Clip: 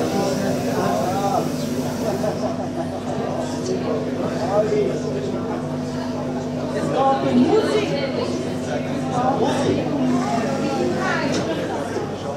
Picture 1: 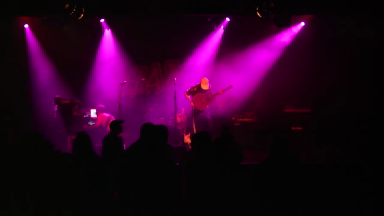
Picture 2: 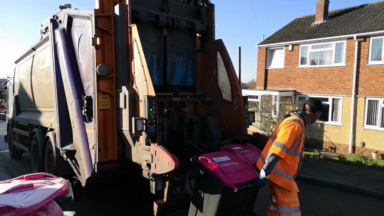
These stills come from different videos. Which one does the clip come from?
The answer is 1